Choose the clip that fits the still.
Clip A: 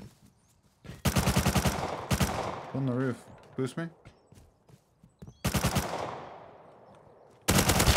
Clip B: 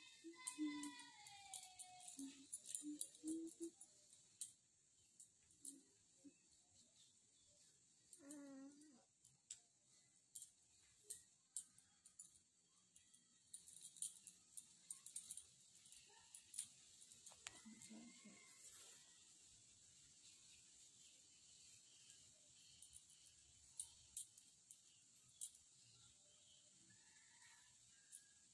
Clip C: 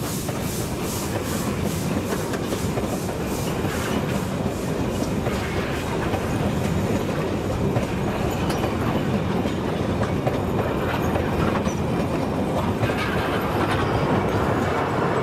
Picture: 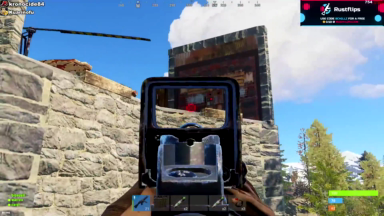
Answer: A